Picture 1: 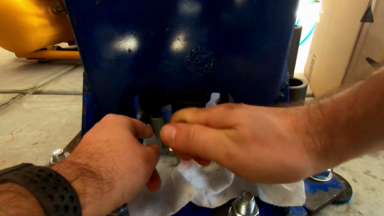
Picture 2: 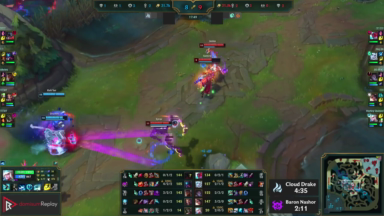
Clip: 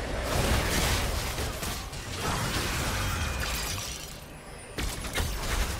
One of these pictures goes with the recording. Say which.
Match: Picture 2